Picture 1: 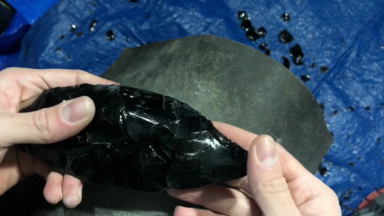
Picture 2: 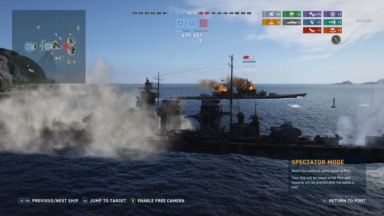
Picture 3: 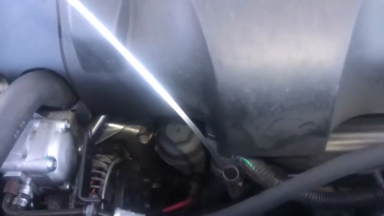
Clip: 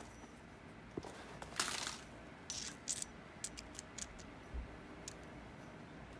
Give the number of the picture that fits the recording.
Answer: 1